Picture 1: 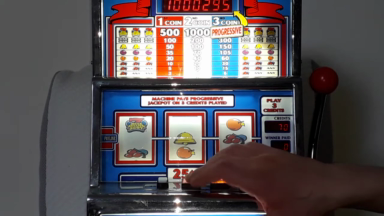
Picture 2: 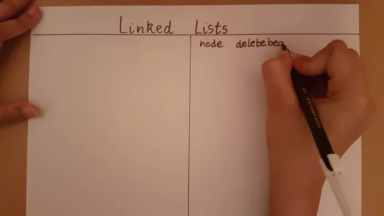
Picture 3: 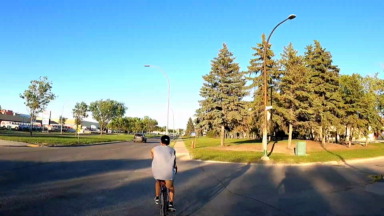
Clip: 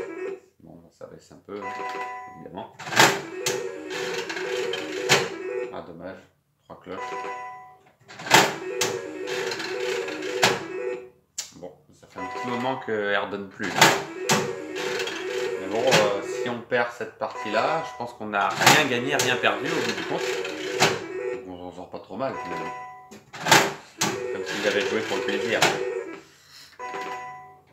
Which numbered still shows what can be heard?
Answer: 1